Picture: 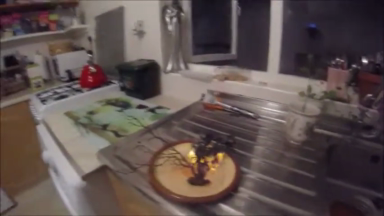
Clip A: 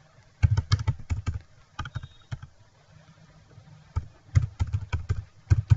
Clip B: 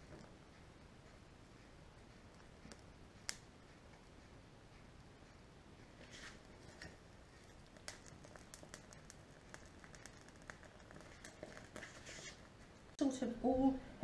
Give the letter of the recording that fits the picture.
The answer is B